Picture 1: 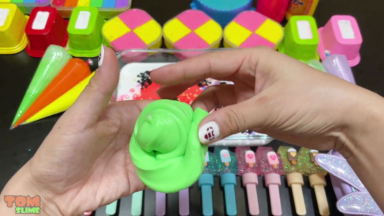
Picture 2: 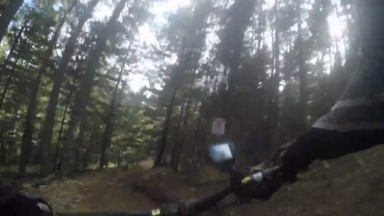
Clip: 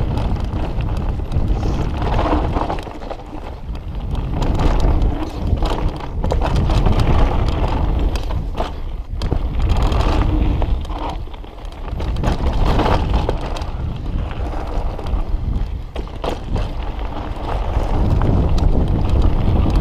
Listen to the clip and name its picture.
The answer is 2